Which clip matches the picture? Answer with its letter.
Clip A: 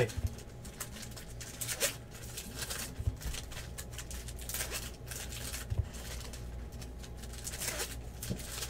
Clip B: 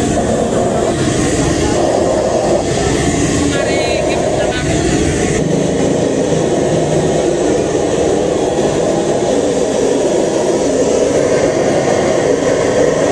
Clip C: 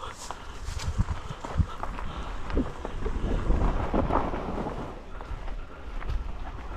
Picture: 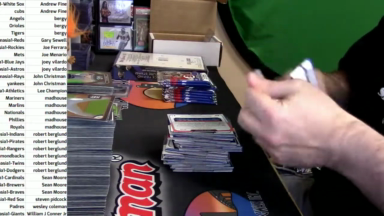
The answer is A